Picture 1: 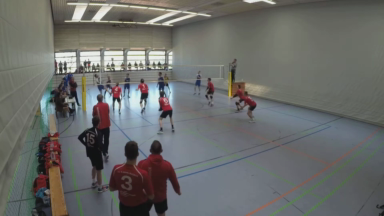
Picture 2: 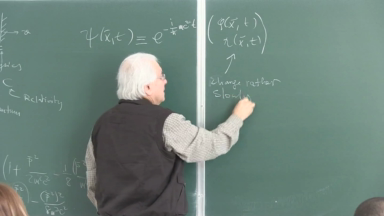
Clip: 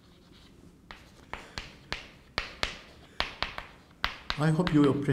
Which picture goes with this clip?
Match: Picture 2